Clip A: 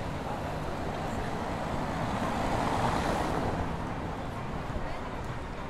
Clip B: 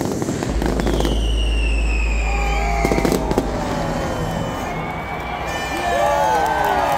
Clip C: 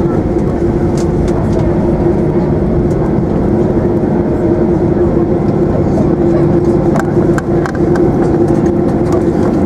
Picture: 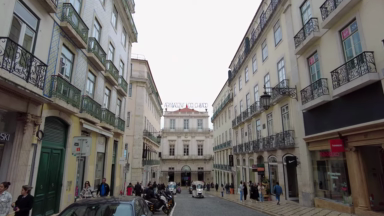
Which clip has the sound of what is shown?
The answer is A